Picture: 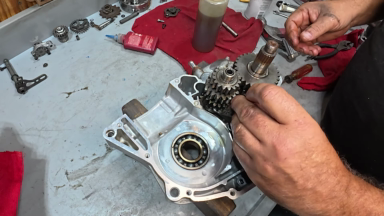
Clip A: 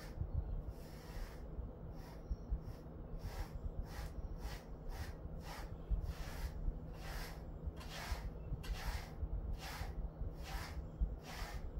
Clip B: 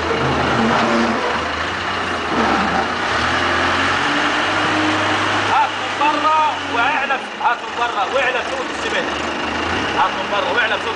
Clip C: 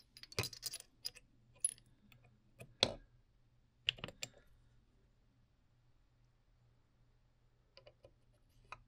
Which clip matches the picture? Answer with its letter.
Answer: C